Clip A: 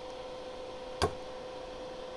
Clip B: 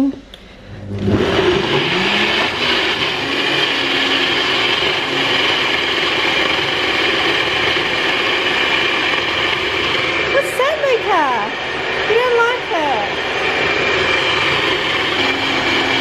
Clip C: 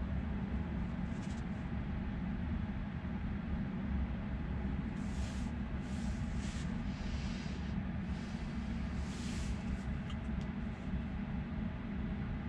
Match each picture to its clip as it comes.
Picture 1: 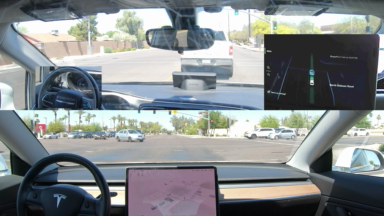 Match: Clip C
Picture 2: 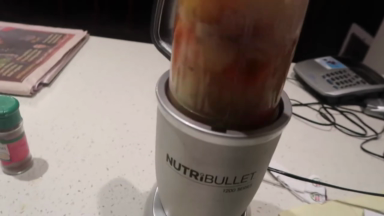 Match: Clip B